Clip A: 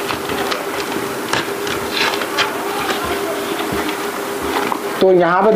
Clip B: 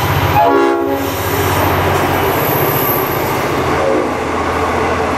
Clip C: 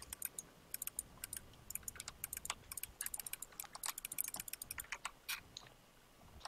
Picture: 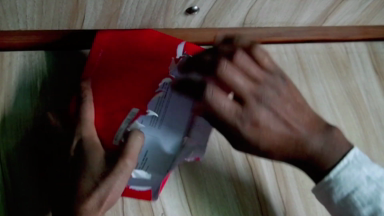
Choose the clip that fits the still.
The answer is A